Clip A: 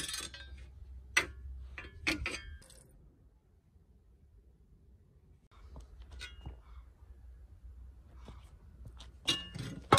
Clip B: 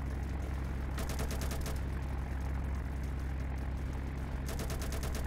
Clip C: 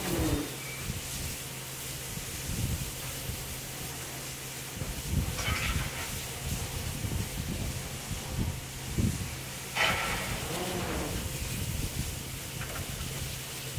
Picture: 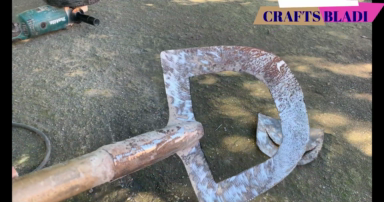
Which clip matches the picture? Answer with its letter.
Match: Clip A